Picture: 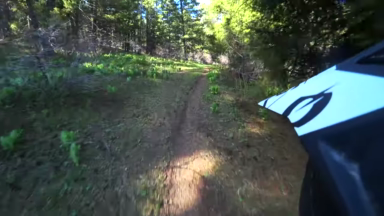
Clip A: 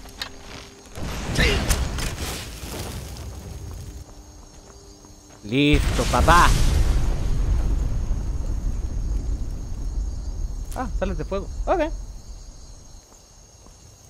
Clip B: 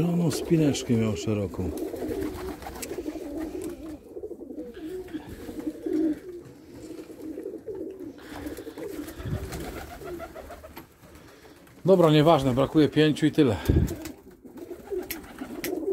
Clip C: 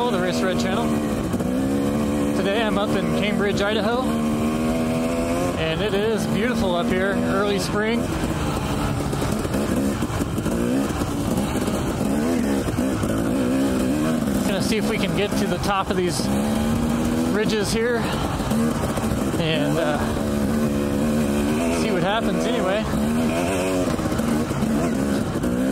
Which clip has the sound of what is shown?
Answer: C